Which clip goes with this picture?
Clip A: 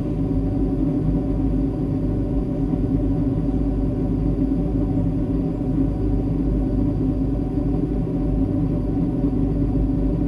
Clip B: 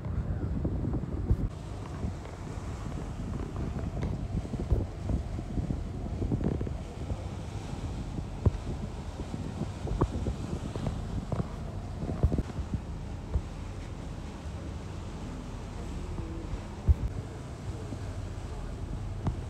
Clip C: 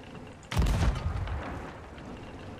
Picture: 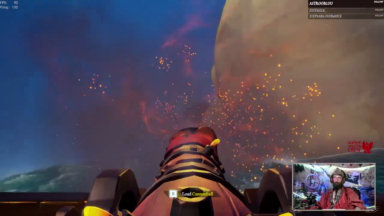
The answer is C